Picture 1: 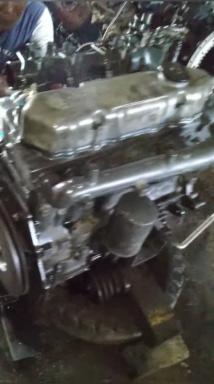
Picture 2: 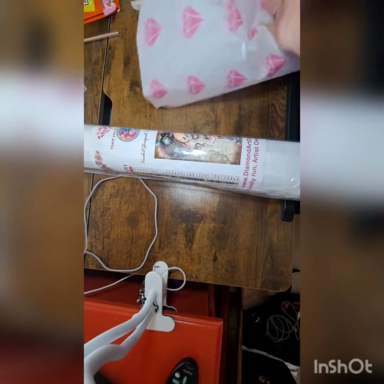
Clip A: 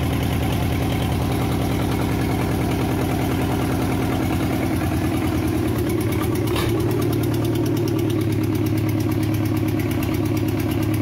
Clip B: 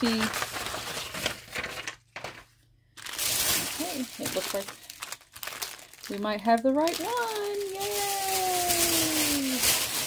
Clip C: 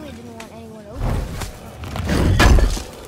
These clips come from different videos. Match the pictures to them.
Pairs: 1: A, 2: B